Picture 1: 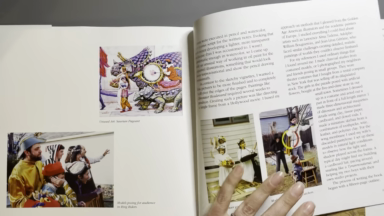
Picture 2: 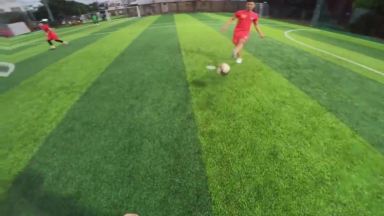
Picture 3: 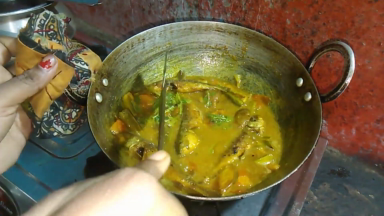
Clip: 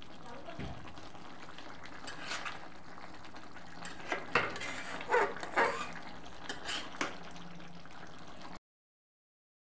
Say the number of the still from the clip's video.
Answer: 3